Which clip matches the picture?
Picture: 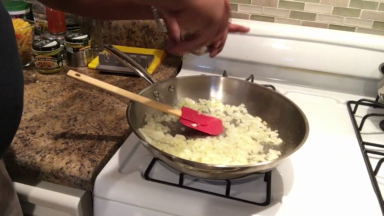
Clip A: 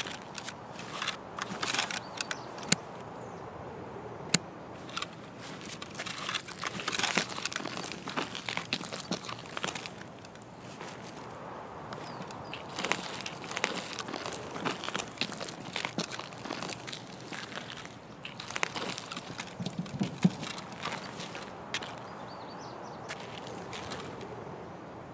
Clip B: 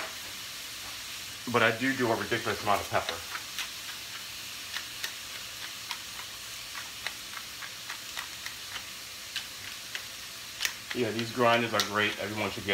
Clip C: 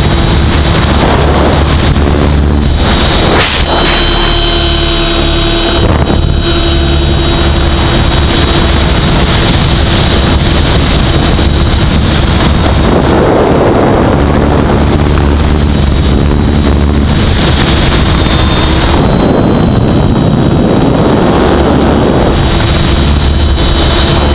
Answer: B